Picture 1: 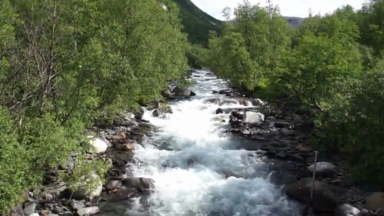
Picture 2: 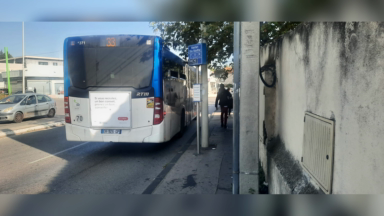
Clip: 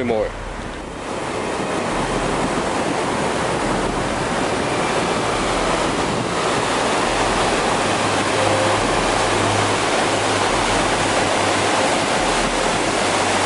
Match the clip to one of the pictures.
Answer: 1